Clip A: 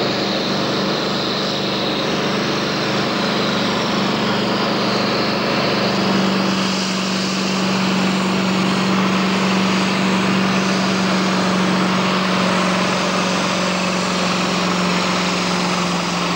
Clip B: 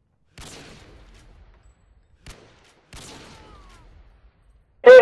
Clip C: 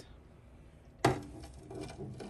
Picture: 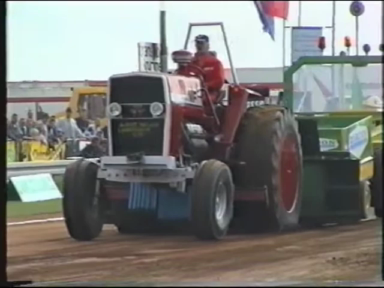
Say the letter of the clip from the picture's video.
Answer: A